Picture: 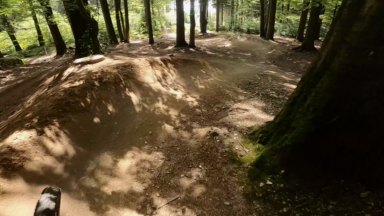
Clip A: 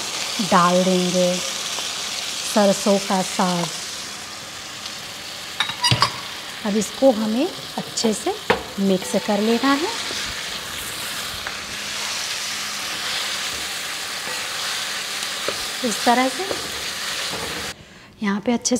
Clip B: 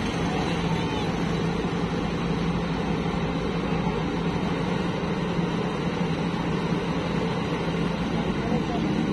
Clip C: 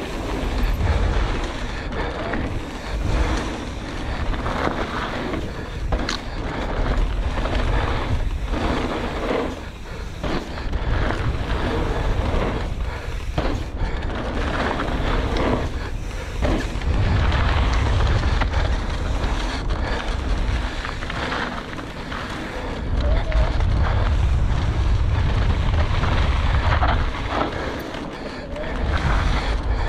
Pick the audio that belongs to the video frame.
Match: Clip C